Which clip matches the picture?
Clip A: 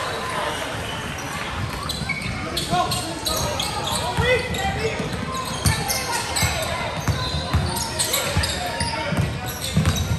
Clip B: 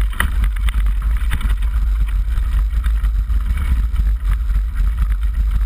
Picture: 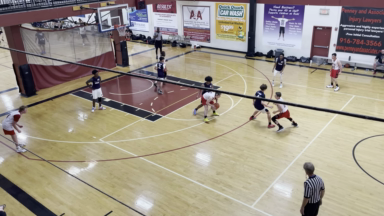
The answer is A